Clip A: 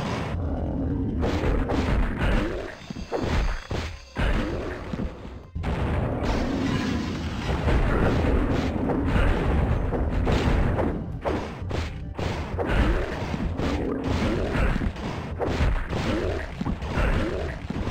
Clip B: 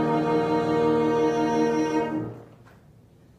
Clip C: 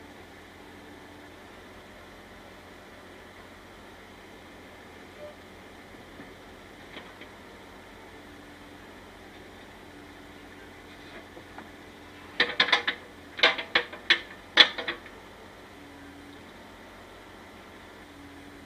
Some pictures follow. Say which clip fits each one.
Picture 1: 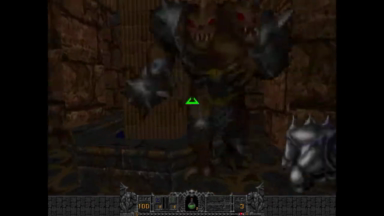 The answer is A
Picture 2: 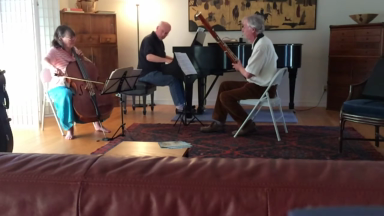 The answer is B